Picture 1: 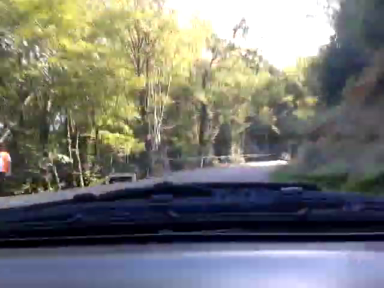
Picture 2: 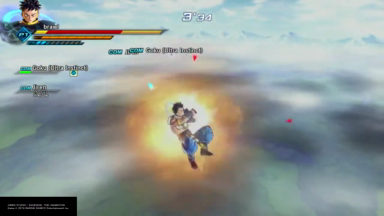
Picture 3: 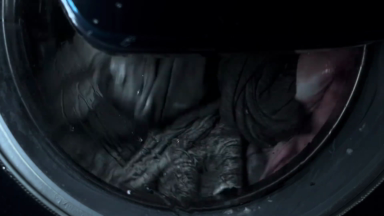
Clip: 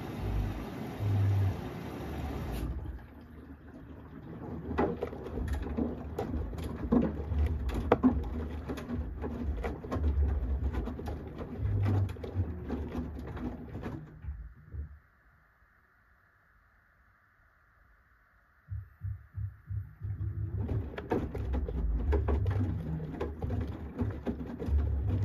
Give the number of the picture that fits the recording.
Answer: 3